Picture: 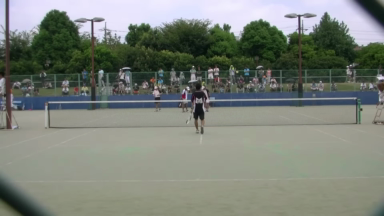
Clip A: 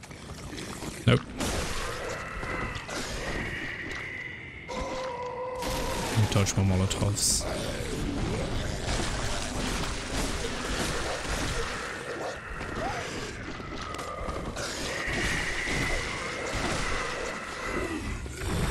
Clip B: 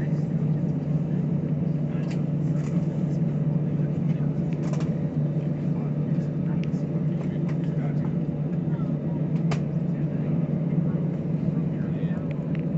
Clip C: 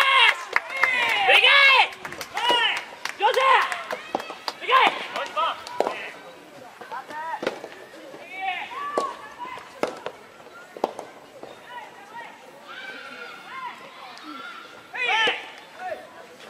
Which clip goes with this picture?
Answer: C